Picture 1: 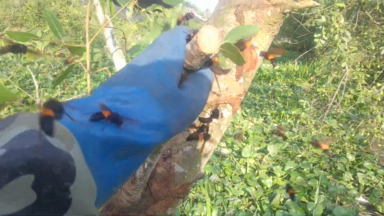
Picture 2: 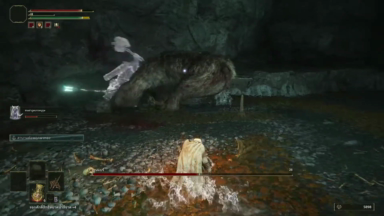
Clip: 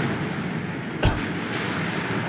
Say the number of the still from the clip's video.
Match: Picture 2